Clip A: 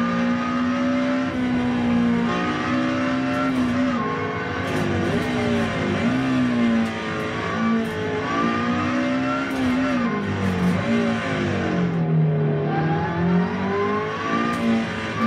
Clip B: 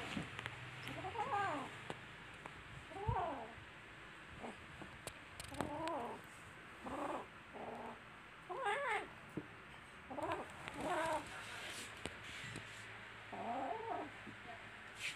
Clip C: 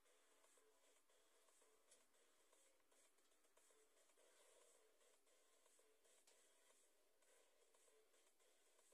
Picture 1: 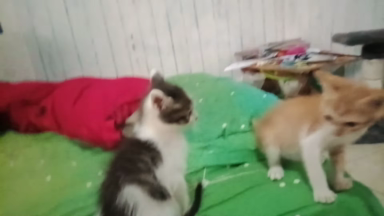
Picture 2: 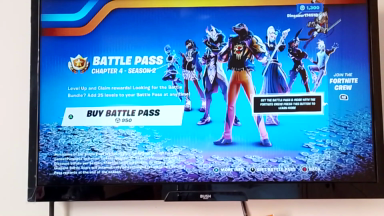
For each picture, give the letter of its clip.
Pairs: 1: B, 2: C